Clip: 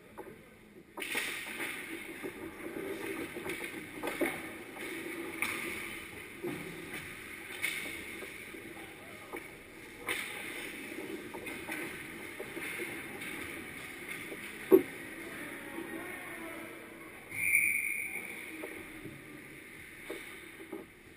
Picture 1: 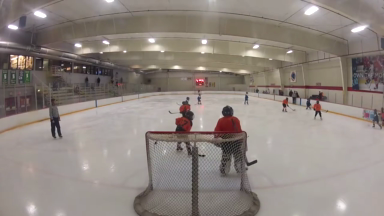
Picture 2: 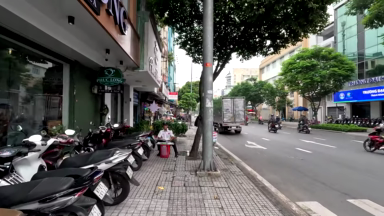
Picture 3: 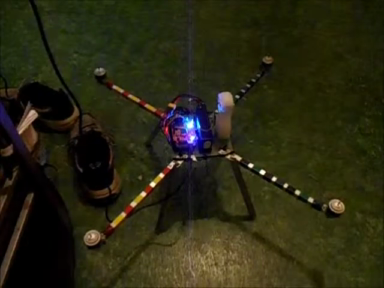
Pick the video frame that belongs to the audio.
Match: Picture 1